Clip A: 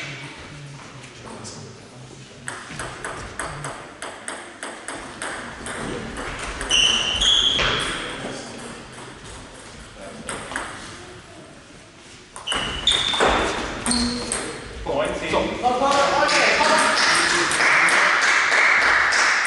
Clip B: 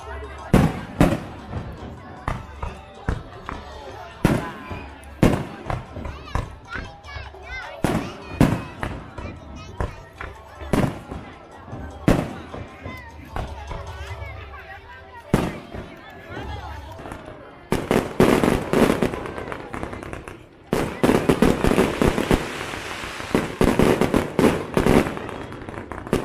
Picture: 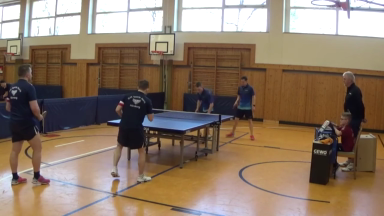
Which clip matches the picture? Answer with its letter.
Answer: A